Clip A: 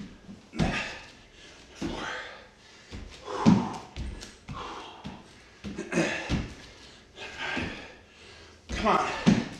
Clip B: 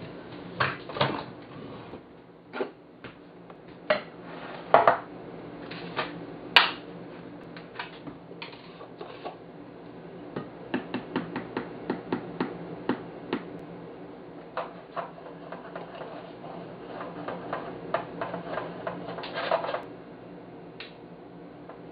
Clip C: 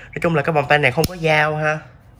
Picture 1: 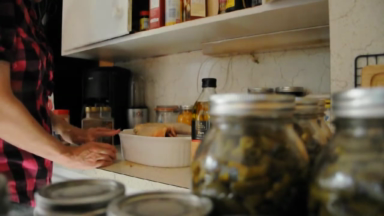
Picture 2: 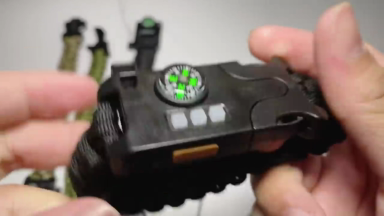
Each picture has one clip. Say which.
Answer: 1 B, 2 C